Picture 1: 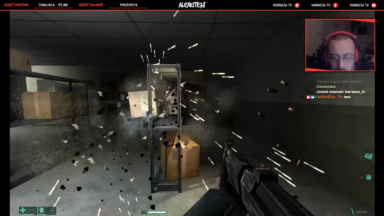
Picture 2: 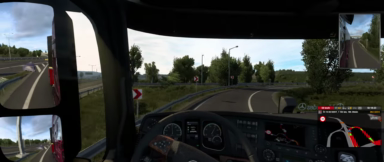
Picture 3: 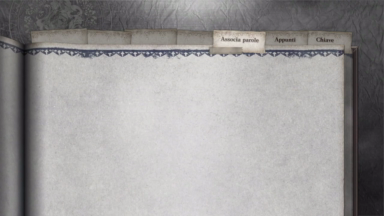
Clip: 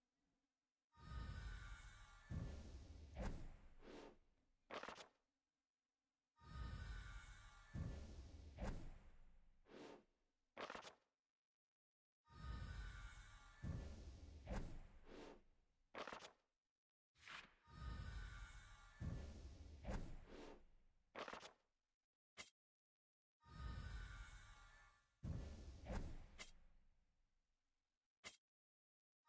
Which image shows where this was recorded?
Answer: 3